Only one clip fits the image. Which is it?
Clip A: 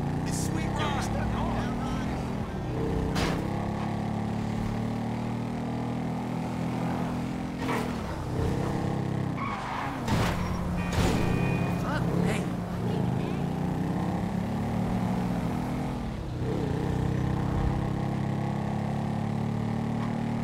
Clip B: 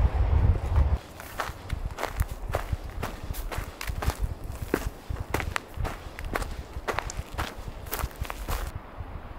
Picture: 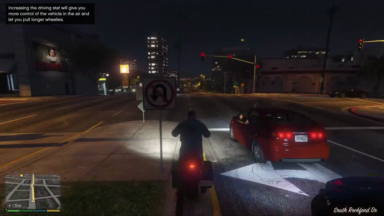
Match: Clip A